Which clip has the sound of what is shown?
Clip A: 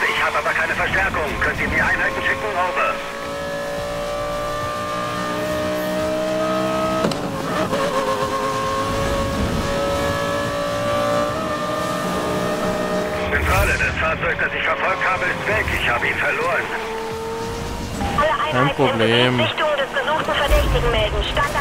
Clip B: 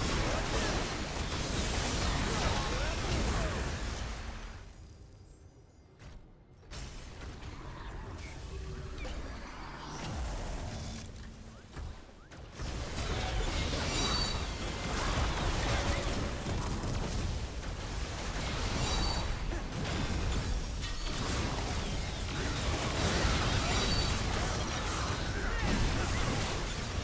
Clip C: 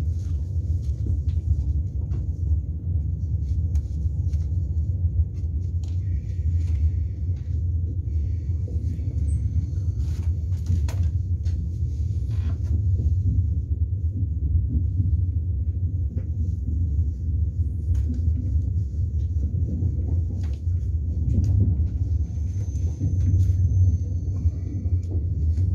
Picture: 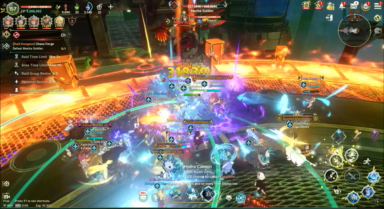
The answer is B